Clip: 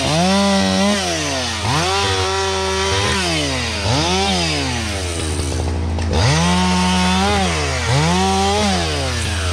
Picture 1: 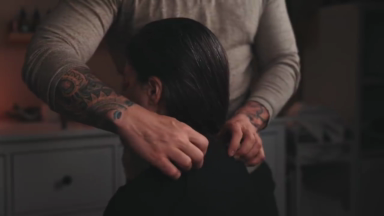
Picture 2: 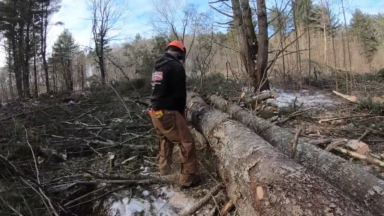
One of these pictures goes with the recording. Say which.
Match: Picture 2